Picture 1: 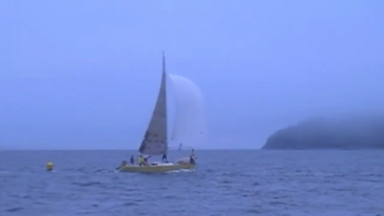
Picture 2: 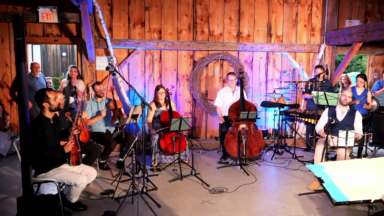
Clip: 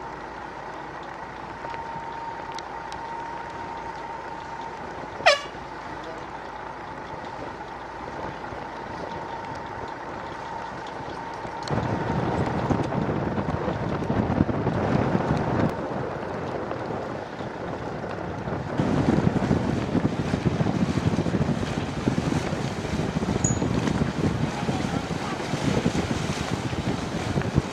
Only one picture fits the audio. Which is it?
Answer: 1